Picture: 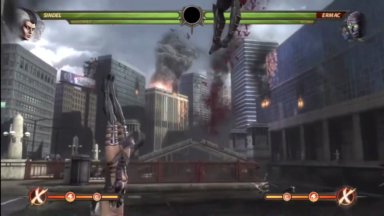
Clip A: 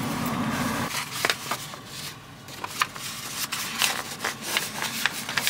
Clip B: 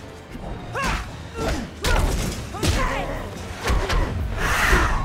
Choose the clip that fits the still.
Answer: B